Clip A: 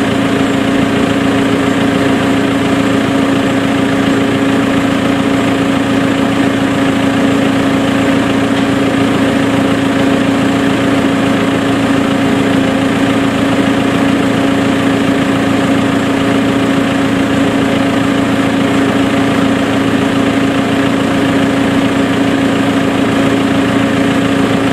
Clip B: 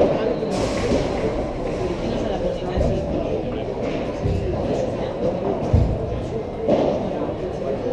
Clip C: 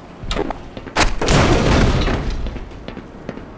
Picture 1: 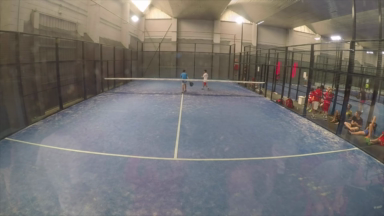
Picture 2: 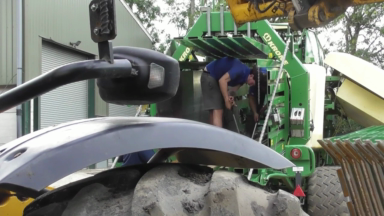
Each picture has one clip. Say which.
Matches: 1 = B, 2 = A